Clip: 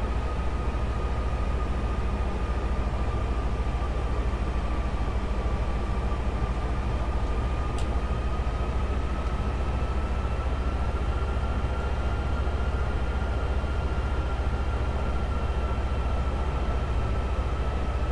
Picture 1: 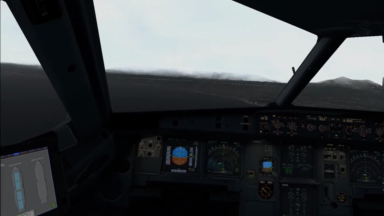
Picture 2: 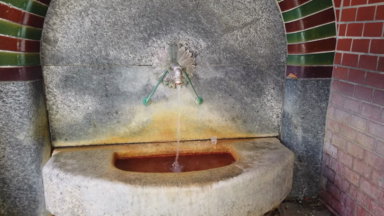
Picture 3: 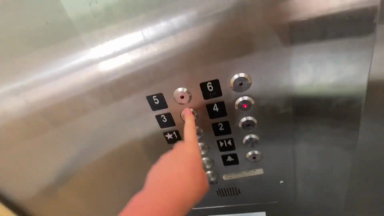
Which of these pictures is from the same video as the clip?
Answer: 1